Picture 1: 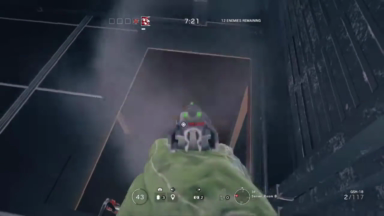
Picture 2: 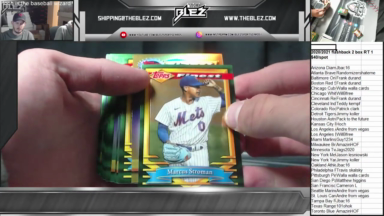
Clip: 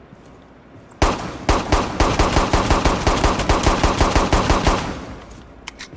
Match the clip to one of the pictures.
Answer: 1